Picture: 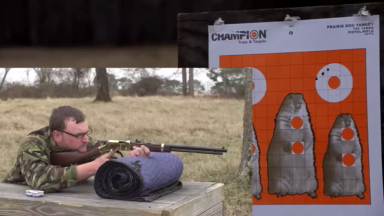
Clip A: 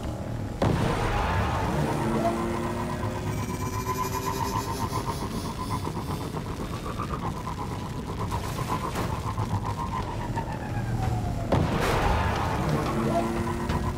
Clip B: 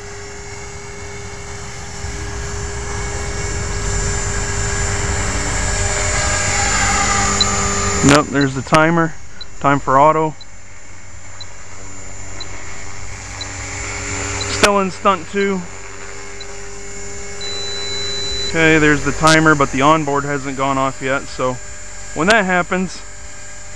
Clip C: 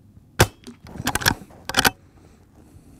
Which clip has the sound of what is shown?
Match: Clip C